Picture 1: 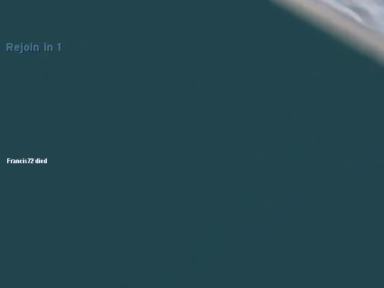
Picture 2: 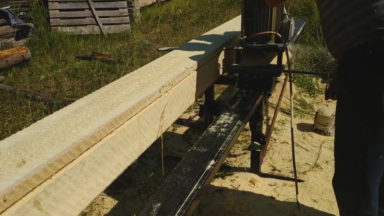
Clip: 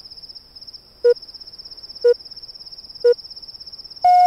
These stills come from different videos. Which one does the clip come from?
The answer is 1